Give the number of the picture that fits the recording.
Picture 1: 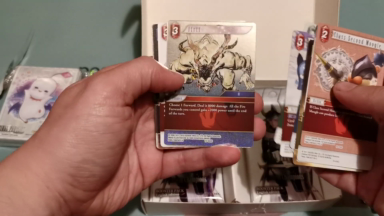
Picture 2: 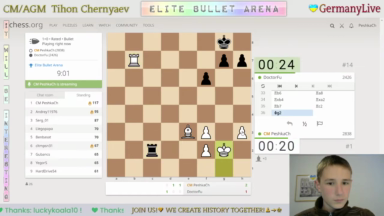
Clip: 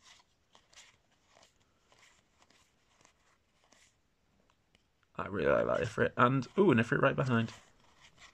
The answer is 1